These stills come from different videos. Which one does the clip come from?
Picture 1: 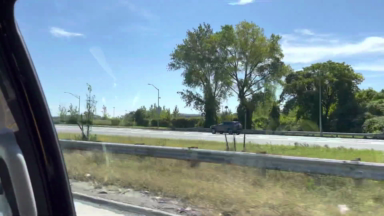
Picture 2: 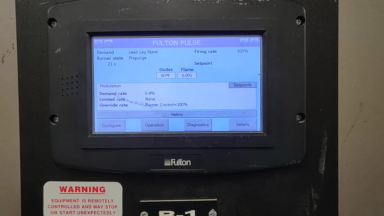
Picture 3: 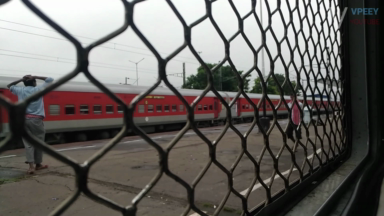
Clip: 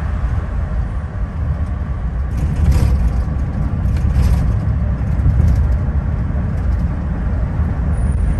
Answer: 1